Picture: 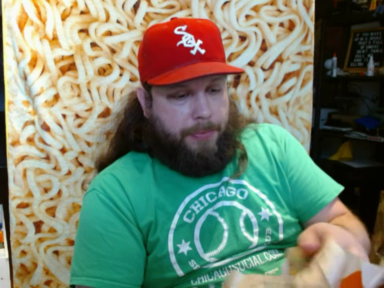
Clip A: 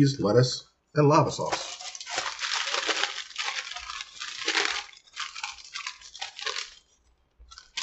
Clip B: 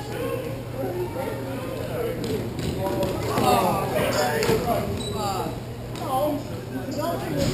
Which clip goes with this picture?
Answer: A